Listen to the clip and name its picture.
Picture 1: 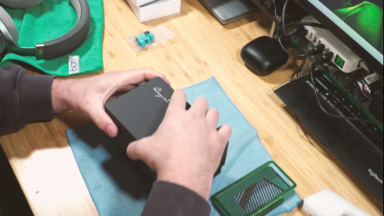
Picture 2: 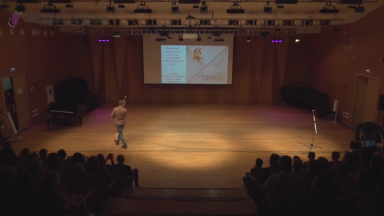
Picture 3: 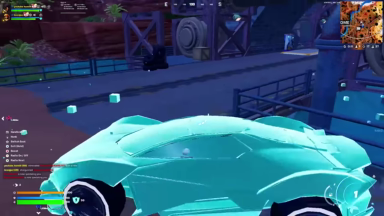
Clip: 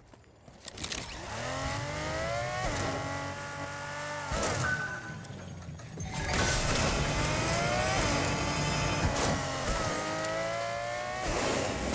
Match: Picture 3